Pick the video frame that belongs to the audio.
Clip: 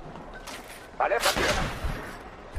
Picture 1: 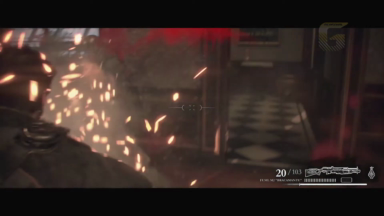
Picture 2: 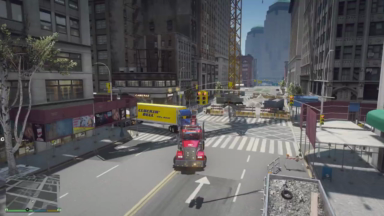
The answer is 1